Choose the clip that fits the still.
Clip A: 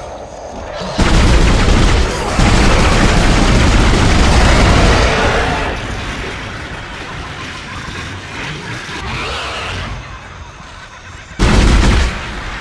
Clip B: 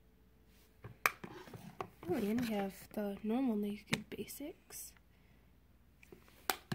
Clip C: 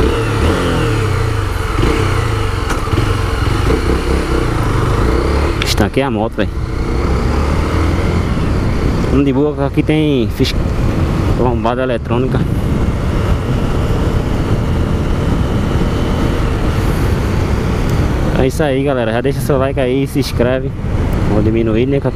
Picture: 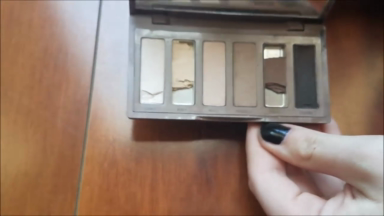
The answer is B